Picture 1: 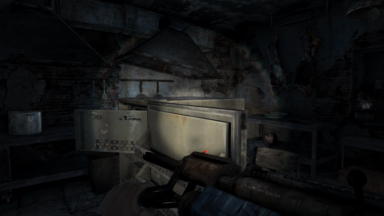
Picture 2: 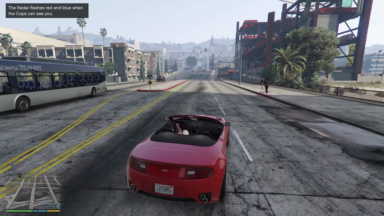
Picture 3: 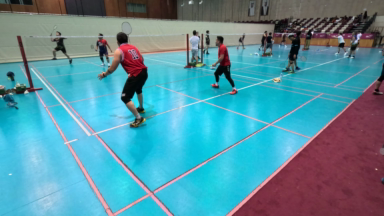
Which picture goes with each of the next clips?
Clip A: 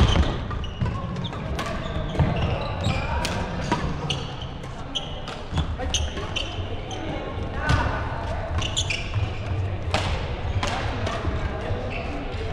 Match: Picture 3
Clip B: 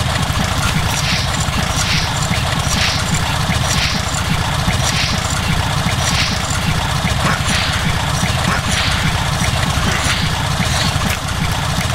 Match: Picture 1